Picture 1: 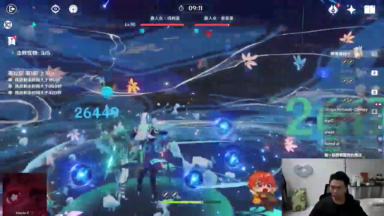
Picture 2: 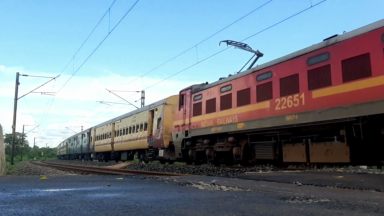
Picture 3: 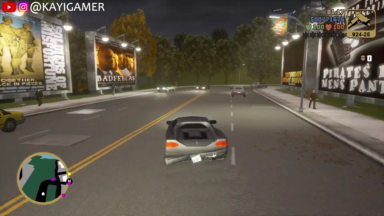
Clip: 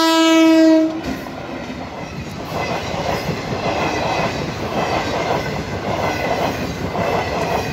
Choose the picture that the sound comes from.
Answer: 2